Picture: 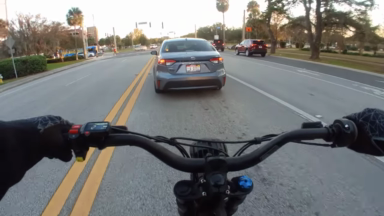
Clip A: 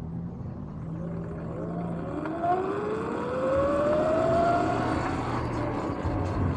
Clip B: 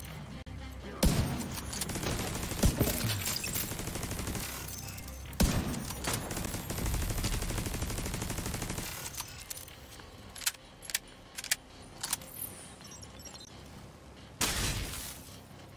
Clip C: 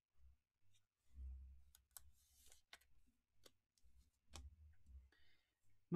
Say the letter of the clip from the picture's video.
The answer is A